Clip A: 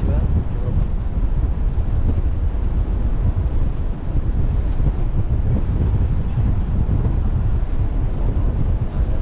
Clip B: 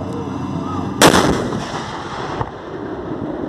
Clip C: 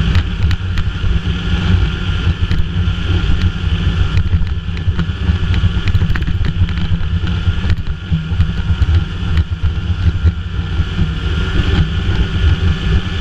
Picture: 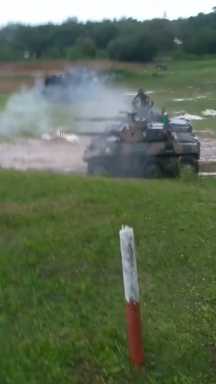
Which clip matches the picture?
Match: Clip B